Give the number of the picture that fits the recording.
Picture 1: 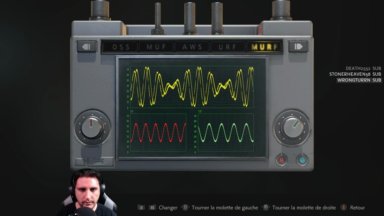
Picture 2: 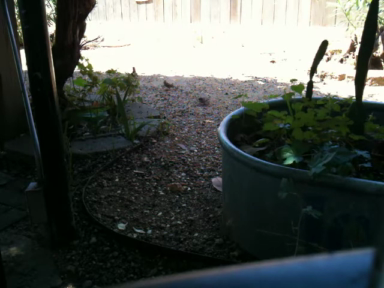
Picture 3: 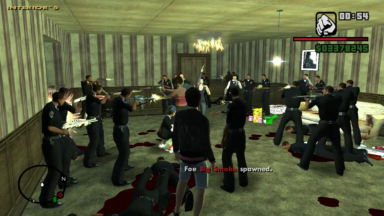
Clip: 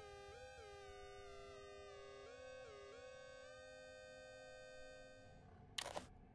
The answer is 1